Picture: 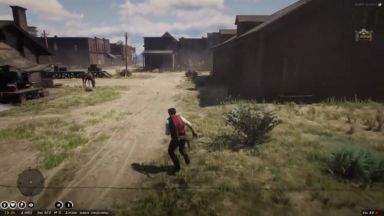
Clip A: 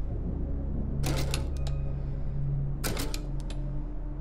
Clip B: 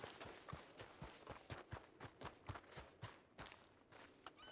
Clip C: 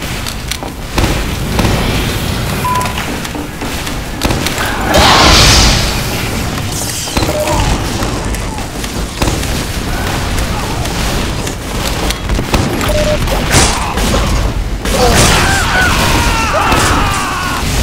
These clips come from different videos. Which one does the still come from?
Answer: B